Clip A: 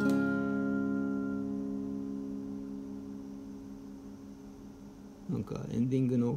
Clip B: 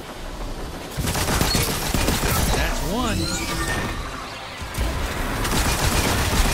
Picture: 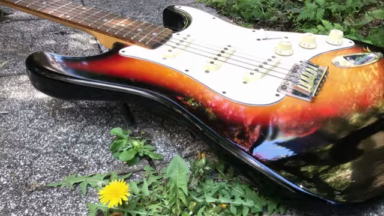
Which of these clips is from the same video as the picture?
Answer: A